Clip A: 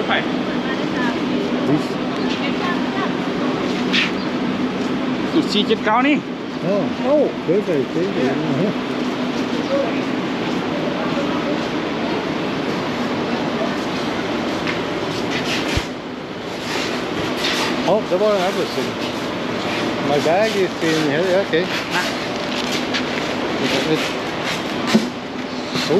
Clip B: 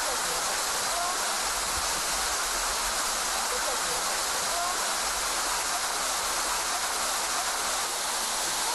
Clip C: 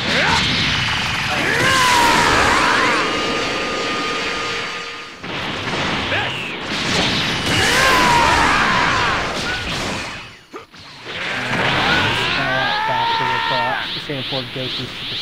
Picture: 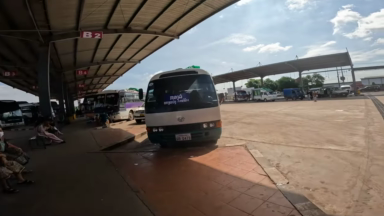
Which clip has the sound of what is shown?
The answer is A